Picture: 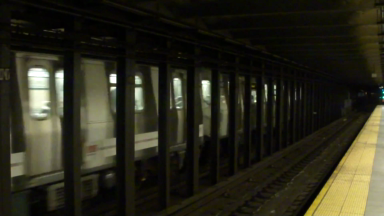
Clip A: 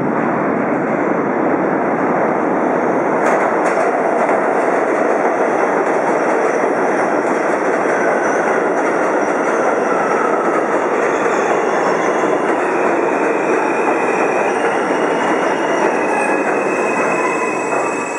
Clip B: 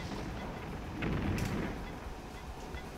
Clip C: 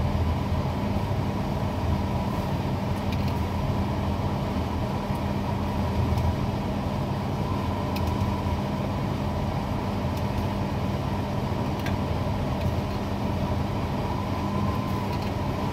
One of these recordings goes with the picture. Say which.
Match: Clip A